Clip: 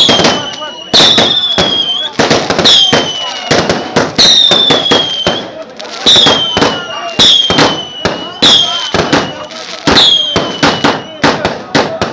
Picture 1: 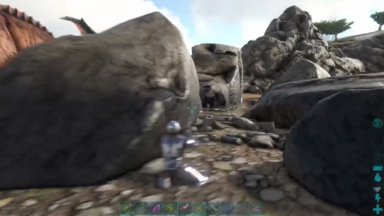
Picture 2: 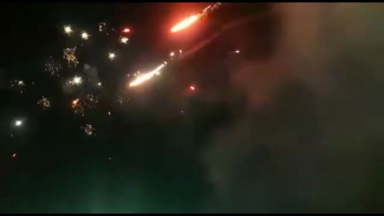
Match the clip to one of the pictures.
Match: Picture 2